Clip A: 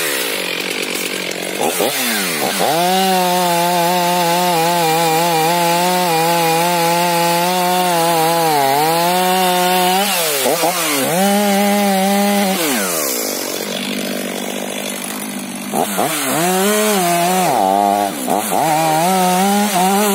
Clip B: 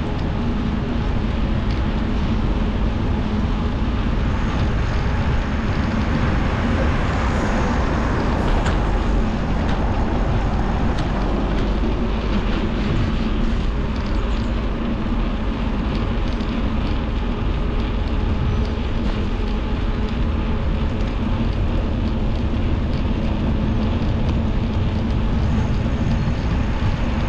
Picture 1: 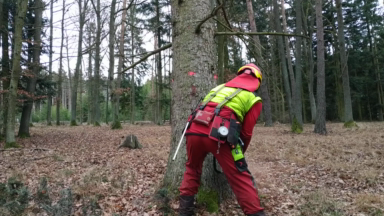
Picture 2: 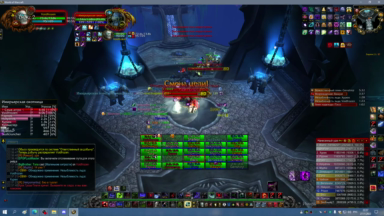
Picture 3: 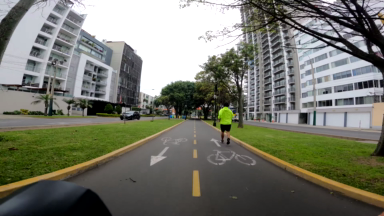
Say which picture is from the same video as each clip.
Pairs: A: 1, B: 3